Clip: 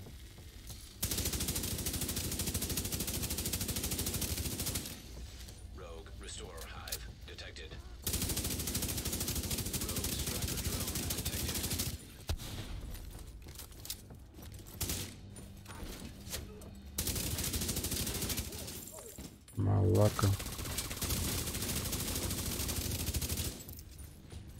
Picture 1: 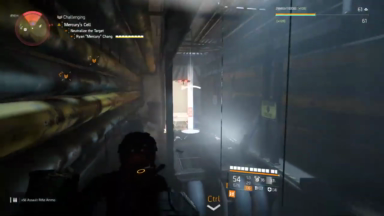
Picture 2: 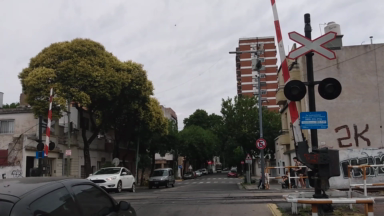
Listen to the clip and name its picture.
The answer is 1